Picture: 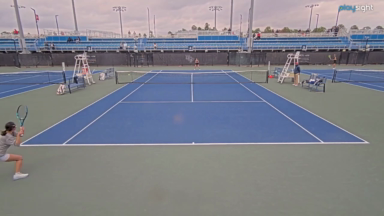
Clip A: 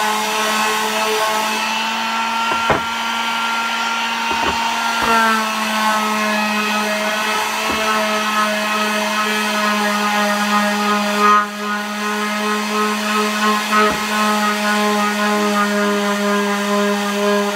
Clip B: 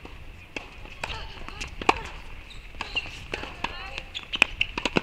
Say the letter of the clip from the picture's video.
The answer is B